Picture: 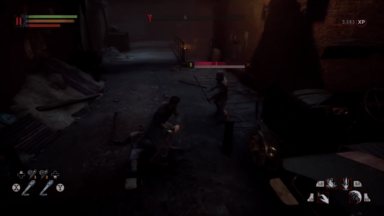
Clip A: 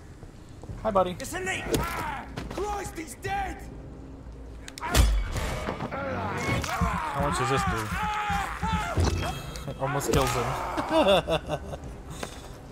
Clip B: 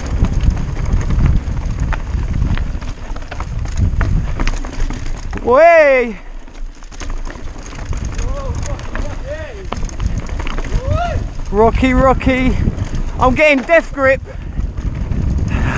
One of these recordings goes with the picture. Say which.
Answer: A